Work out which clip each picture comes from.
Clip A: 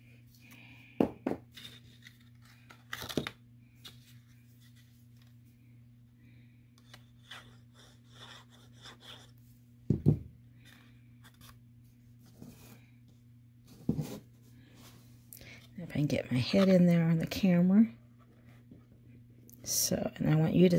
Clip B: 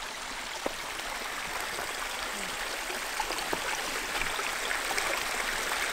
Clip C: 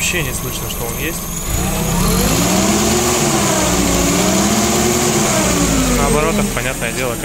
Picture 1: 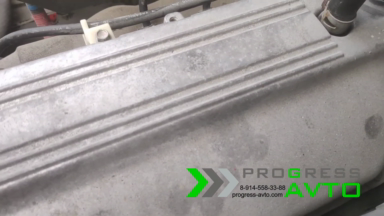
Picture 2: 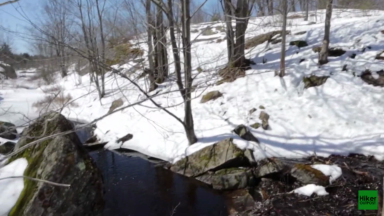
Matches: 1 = C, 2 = B